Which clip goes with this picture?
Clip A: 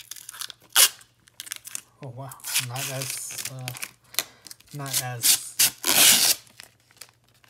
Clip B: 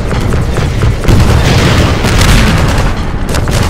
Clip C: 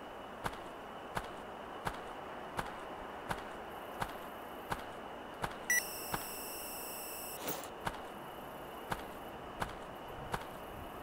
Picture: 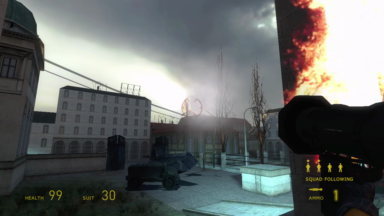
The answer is B